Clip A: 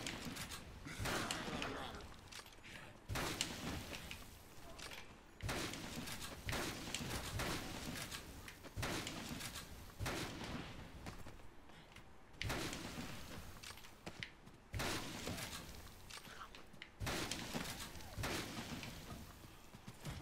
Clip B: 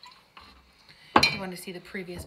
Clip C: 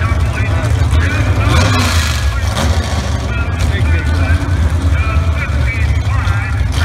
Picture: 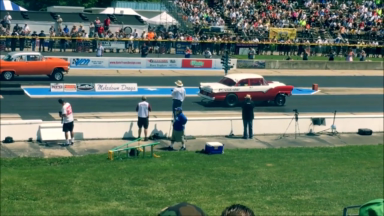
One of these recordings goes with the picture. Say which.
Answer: C